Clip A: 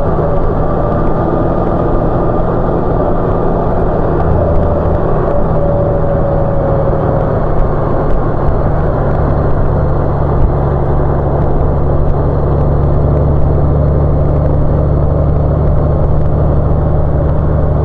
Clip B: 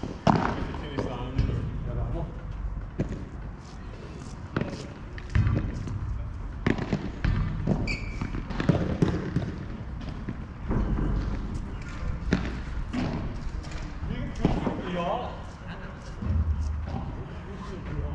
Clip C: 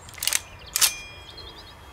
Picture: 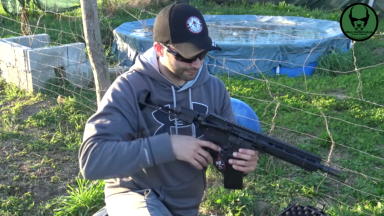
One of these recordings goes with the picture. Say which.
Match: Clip C